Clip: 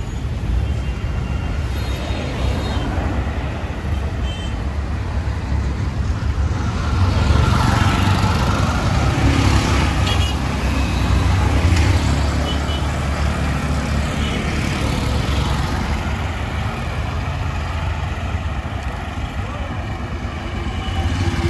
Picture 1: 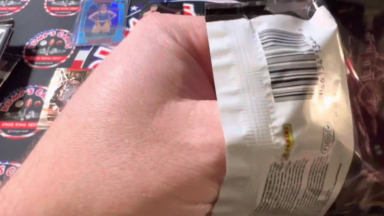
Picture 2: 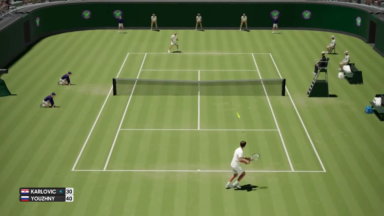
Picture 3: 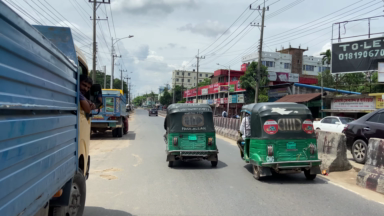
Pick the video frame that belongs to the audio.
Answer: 3